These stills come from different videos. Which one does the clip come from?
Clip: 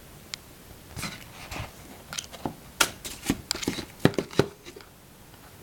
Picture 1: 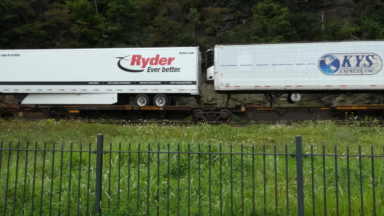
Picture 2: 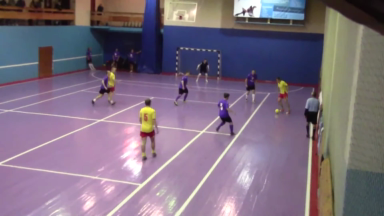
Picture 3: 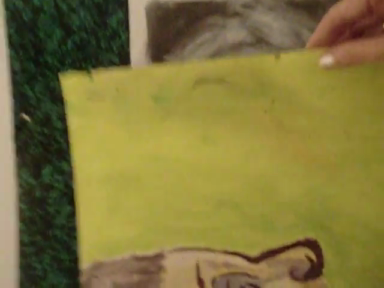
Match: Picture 3